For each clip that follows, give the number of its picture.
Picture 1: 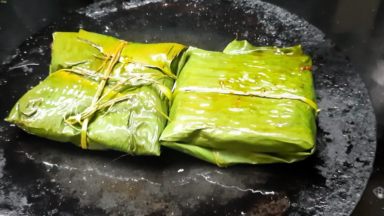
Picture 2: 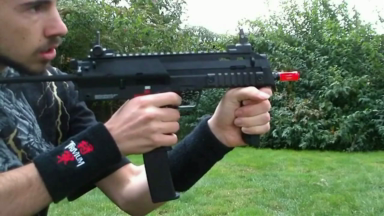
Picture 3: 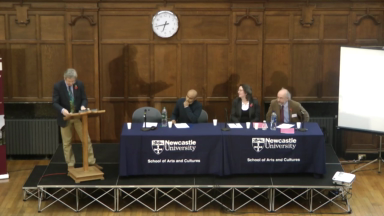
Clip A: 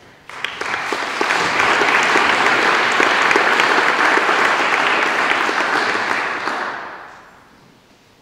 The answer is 3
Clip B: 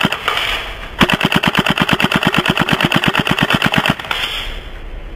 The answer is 2